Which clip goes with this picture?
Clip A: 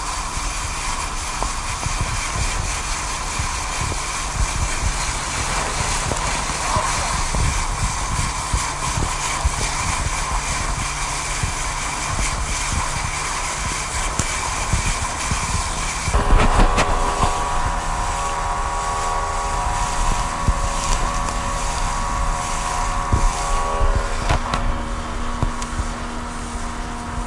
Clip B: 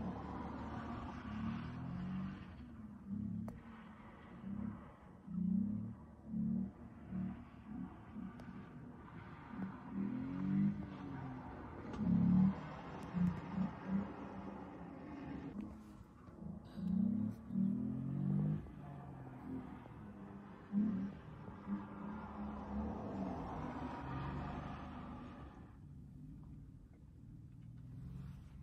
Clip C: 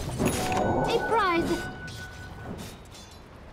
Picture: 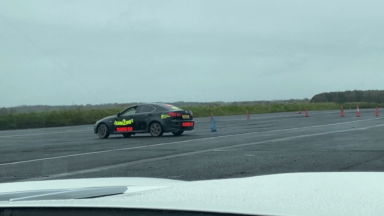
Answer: B